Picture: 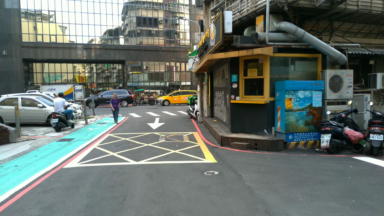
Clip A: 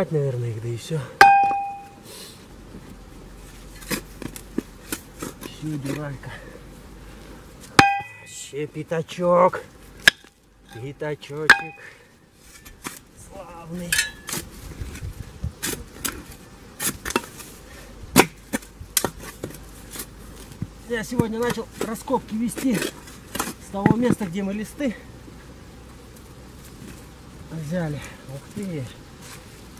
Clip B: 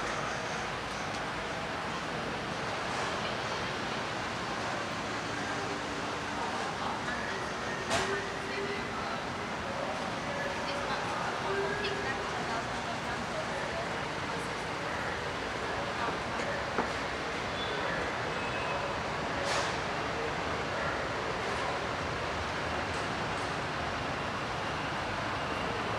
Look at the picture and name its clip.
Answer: B